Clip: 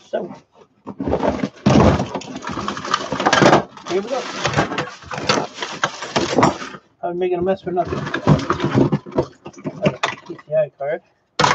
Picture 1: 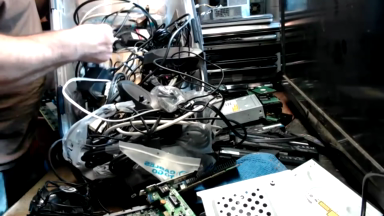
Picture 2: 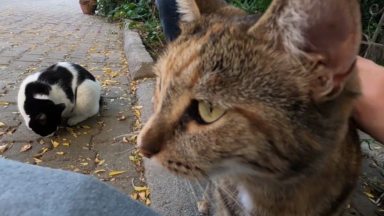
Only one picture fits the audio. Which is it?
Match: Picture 1